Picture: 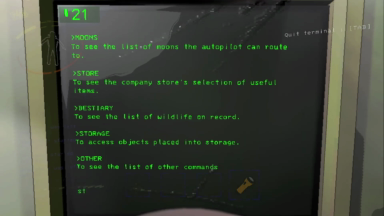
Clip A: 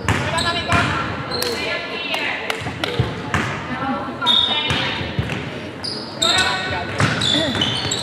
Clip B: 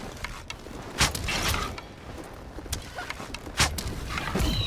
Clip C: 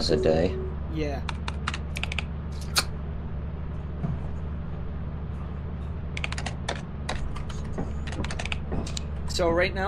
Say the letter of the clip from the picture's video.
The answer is C